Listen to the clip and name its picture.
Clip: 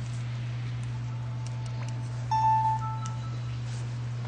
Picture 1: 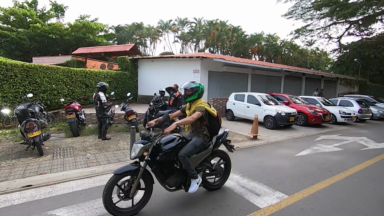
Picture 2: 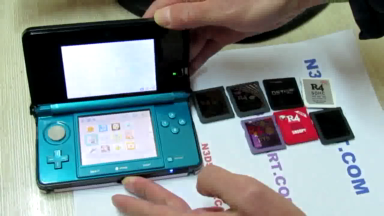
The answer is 2